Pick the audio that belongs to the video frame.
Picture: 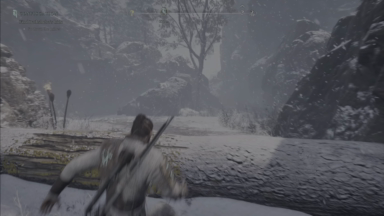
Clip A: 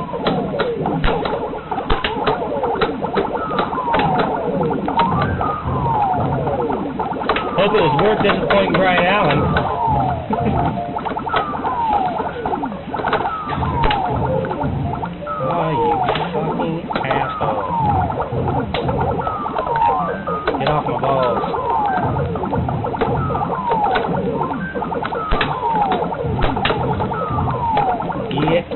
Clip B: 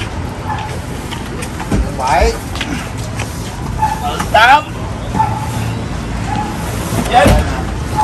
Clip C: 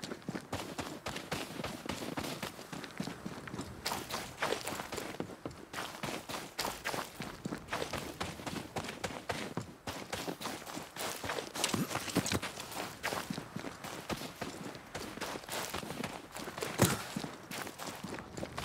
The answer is C